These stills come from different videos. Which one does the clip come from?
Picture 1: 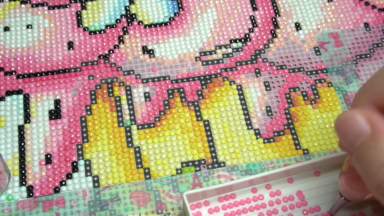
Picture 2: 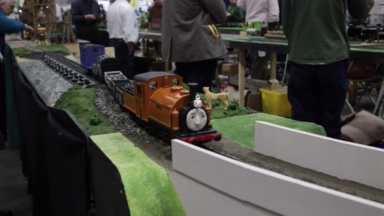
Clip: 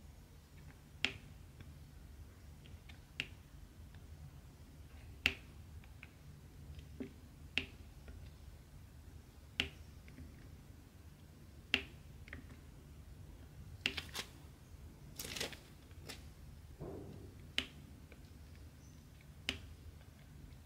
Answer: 1